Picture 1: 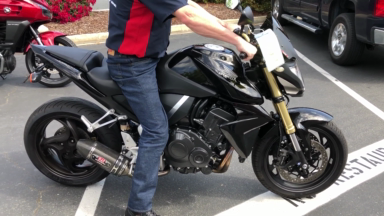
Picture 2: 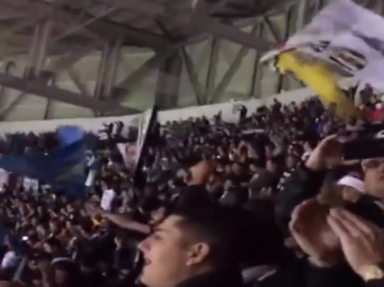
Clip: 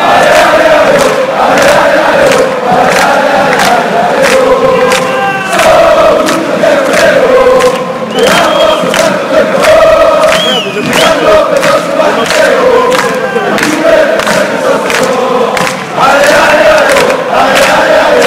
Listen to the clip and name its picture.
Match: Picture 2